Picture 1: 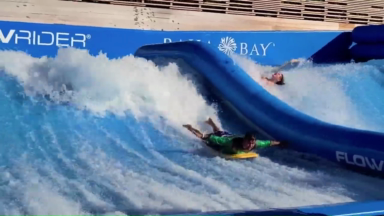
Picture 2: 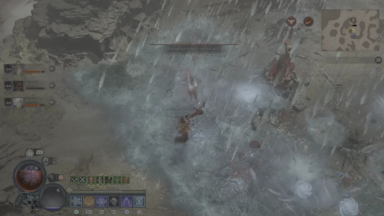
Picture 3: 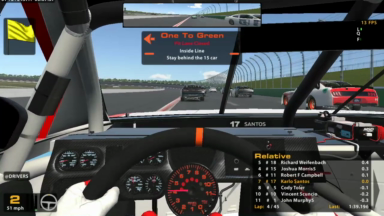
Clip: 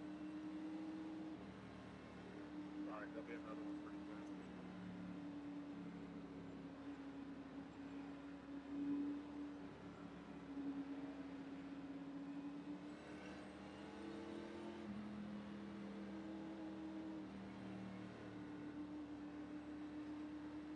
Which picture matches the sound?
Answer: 3